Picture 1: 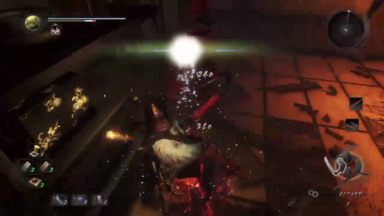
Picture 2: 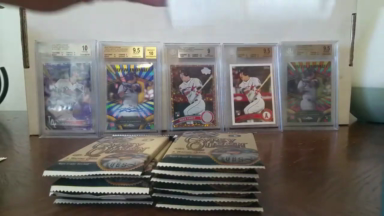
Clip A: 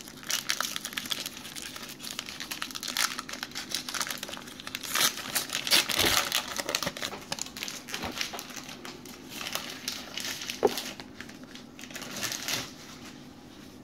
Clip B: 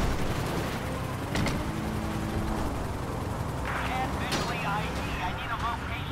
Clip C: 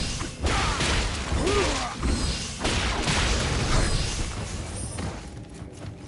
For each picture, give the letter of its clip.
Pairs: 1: C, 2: A